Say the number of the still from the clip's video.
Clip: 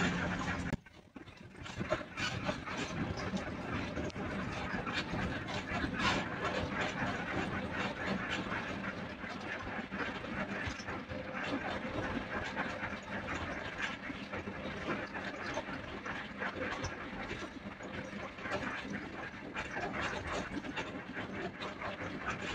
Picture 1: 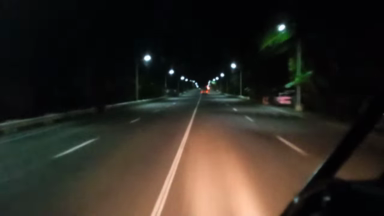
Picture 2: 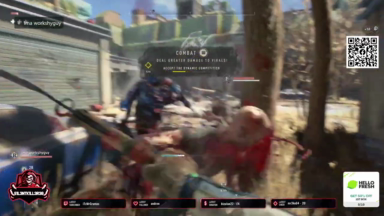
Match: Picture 1